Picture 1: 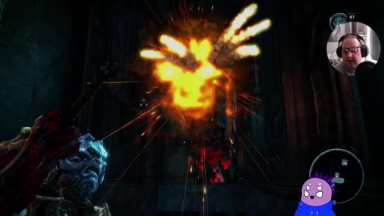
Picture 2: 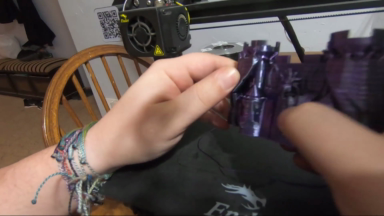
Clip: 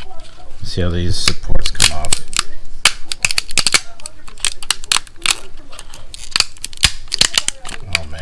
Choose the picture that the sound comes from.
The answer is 2